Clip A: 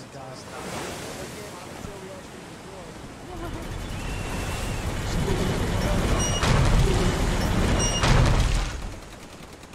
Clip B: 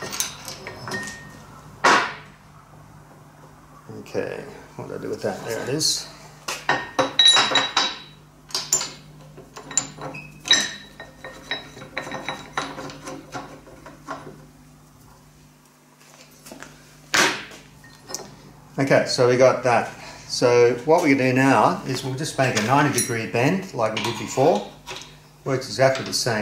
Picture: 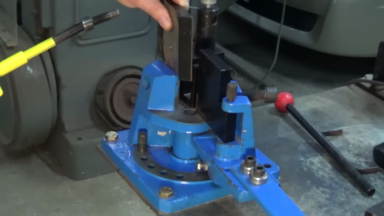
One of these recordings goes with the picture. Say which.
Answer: B